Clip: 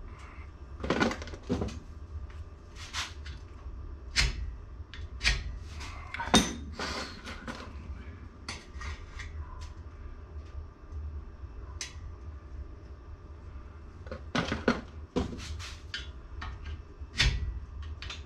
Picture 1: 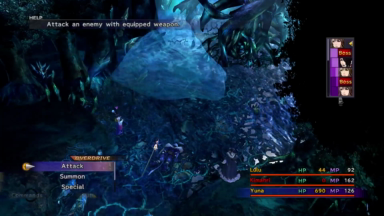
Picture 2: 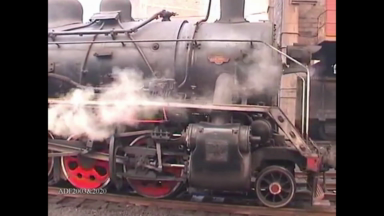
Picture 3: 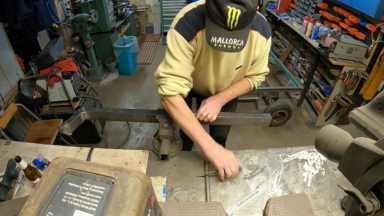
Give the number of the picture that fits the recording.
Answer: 3